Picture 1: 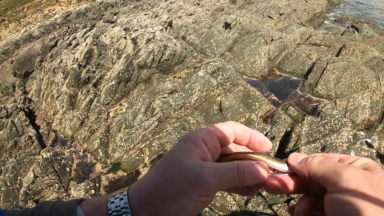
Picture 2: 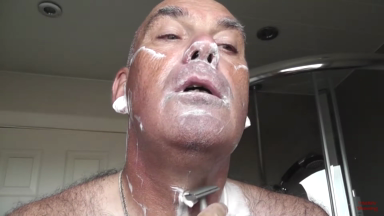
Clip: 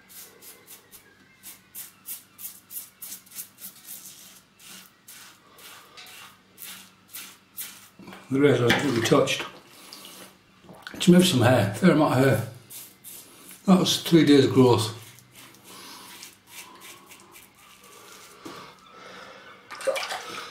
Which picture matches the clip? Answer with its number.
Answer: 2